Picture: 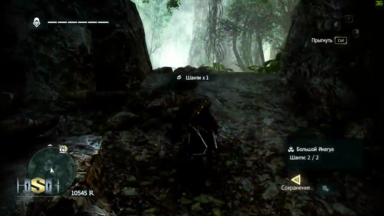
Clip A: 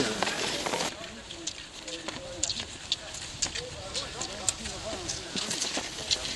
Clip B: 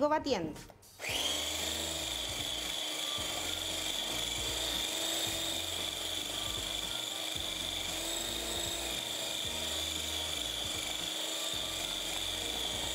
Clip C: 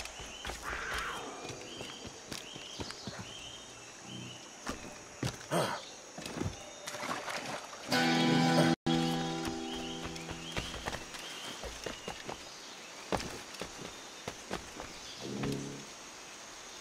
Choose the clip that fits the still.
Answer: C